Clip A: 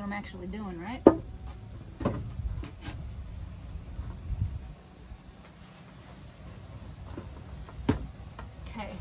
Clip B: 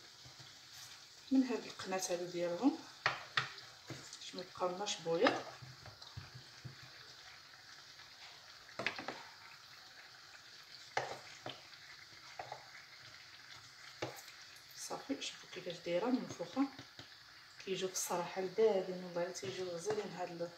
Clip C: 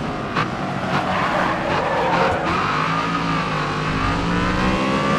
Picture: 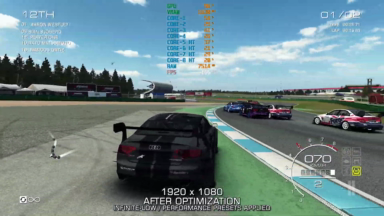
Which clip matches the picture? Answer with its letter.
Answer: C